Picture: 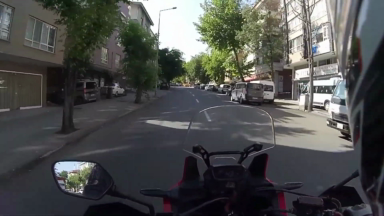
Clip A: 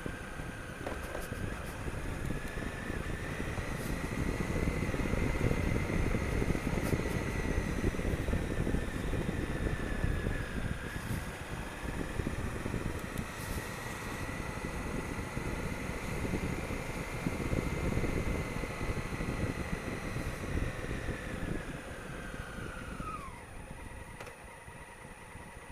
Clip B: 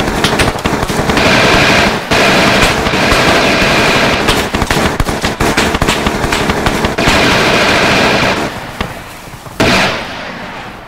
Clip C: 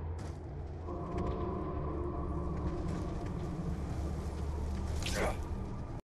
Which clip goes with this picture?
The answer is A